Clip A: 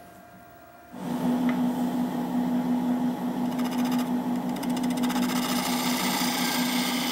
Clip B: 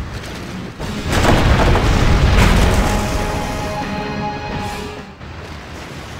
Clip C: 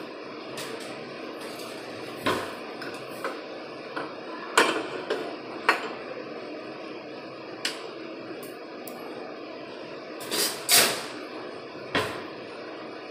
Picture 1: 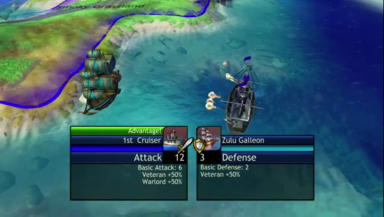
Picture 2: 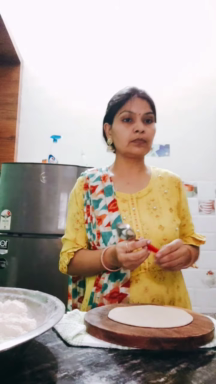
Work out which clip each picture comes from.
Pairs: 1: B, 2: C